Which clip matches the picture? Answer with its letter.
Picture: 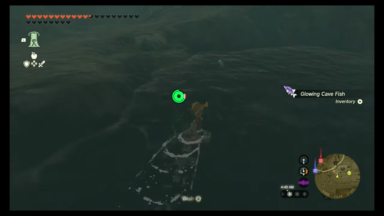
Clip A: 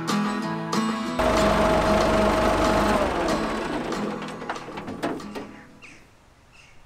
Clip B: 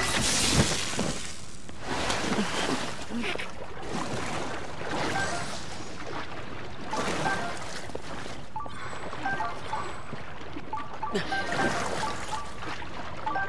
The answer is B